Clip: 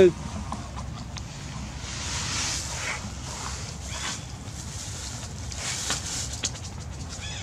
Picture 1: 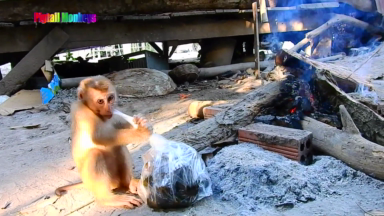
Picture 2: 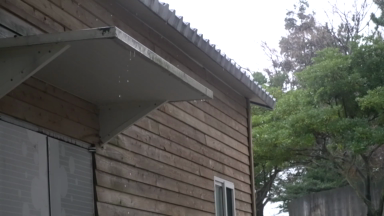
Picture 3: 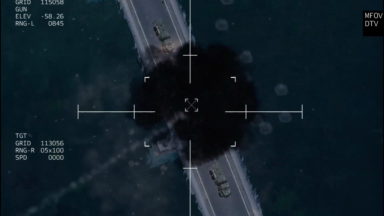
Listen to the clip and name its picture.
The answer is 1